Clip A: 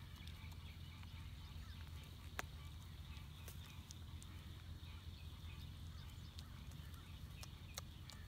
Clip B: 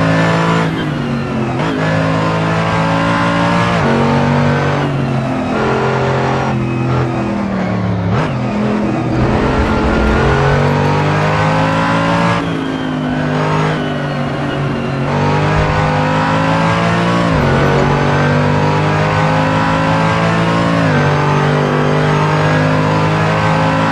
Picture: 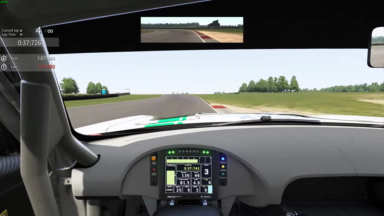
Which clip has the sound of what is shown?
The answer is B